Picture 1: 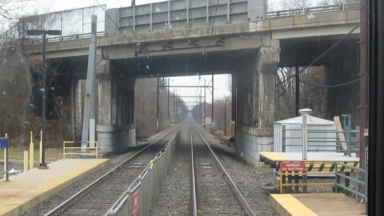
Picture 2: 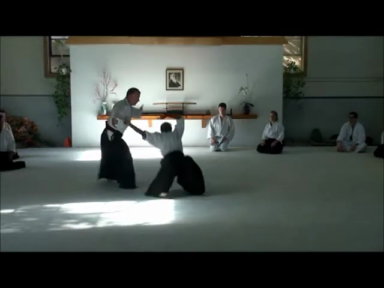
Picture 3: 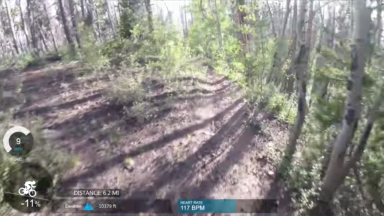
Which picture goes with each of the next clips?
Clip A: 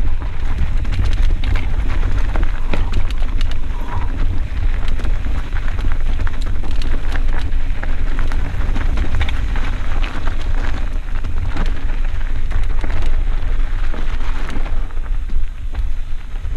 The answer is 3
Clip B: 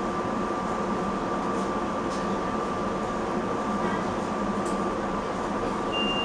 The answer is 1